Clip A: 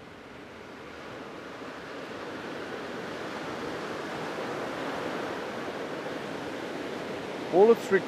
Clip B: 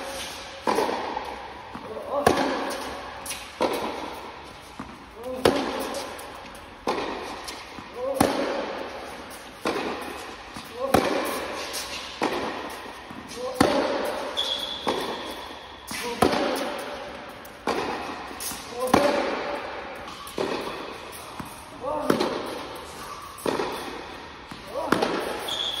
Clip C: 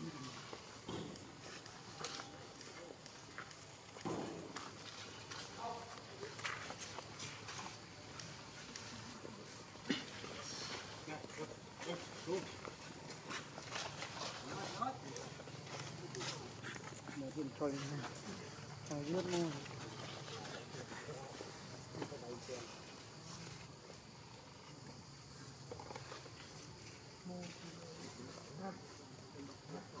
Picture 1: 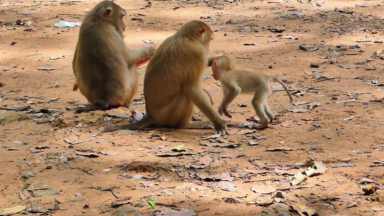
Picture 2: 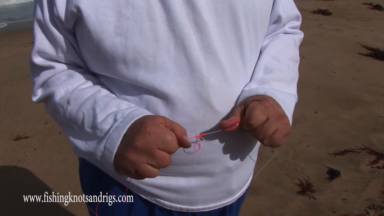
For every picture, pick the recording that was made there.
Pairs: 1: C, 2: A